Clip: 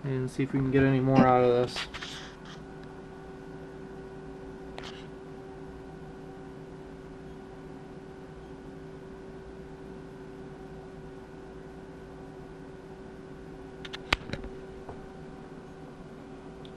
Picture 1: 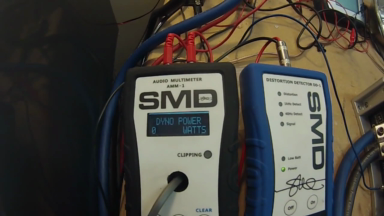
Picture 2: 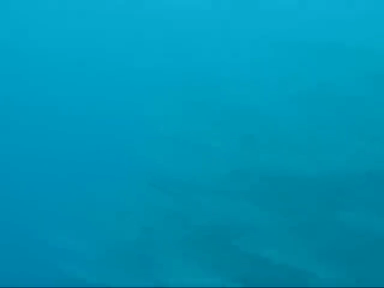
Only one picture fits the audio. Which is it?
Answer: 1